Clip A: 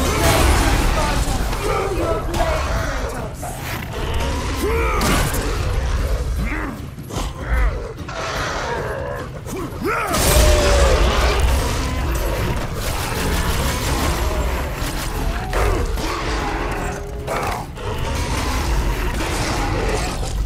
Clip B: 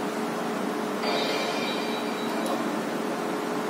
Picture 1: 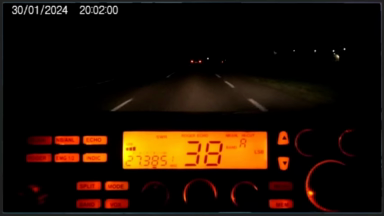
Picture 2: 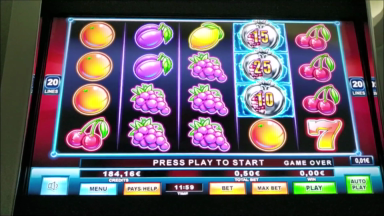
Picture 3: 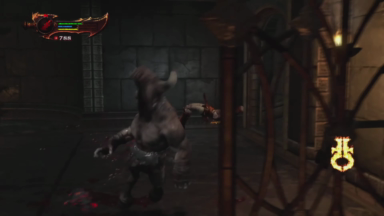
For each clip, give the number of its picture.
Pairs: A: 3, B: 2